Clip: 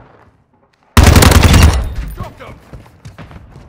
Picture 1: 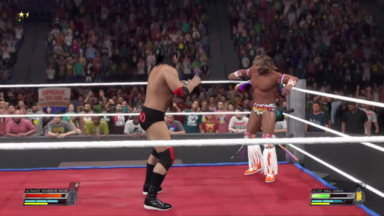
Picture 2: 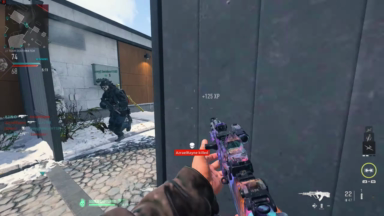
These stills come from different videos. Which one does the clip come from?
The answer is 2